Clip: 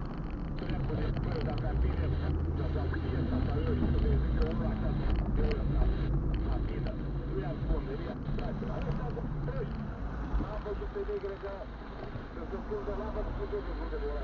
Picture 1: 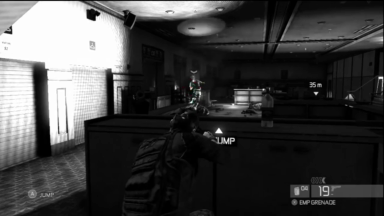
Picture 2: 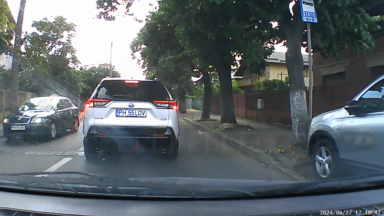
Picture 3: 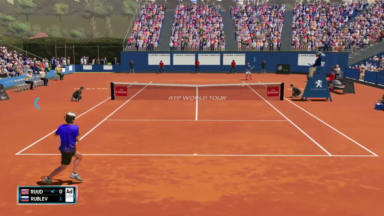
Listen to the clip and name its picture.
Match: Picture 2